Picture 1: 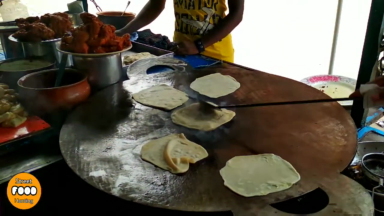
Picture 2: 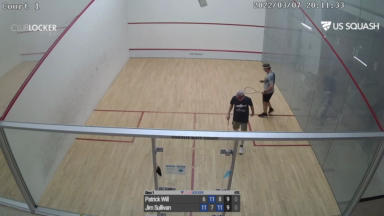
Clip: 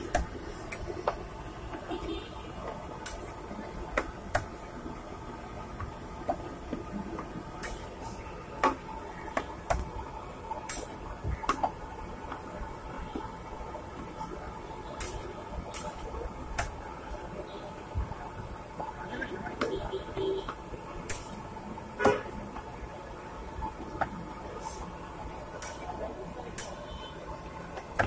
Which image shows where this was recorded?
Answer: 1